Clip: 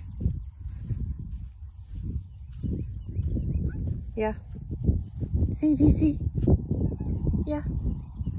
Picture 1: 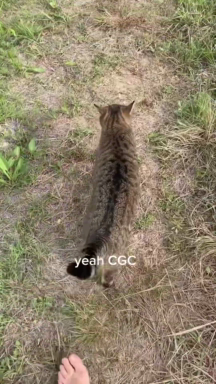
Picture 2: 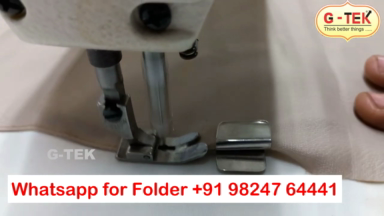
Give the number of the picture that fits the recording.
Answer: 1